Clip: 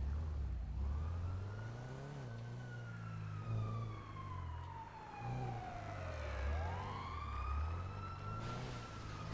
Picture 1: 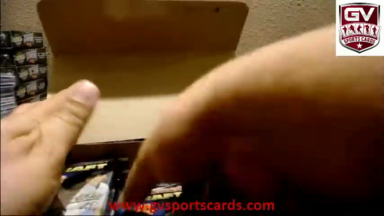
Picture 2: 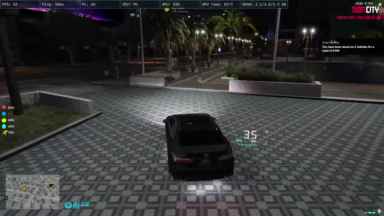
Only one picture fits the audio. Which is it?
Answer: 2